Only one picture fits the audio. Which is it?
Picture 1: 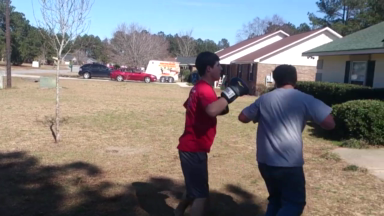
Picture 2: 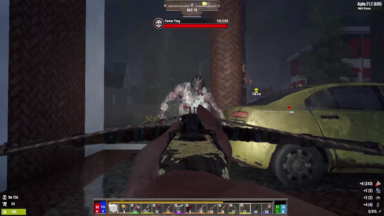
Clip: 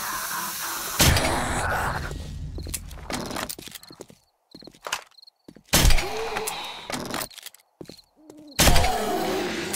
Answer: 2